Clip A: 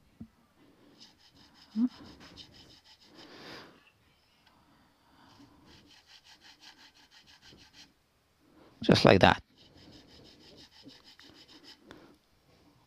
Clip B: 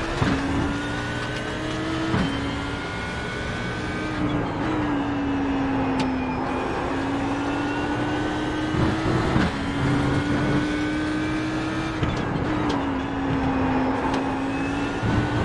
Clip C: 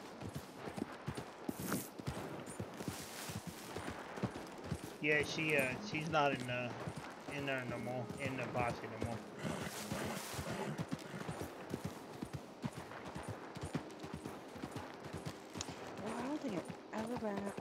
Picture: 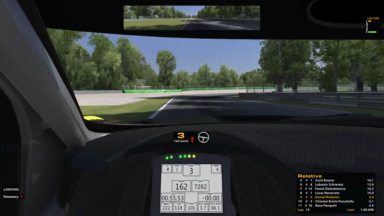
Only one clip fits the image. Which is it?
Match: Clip B